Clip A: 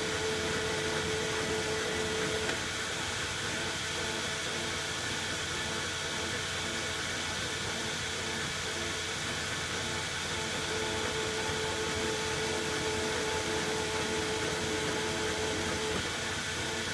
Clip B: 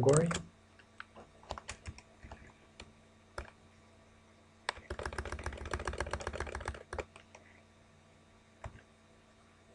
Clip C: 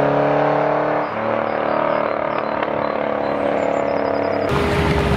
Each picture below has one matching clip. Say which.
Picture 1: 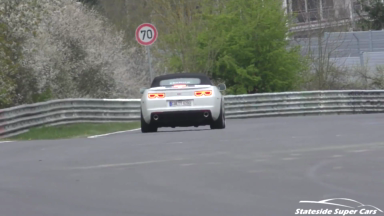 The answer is C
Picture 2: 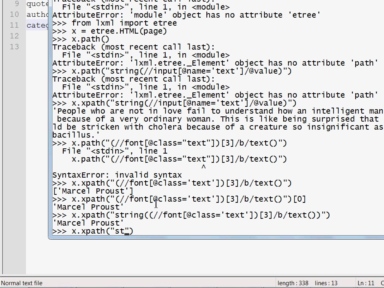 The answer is B